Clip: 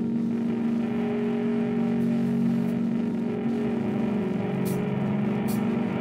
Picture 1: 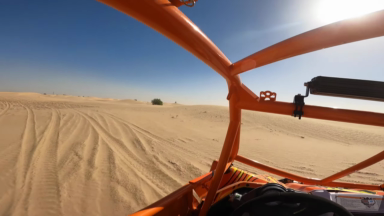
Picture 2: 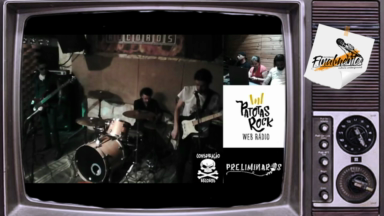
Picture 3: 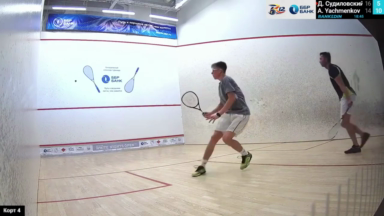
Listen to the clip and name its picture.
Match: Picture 2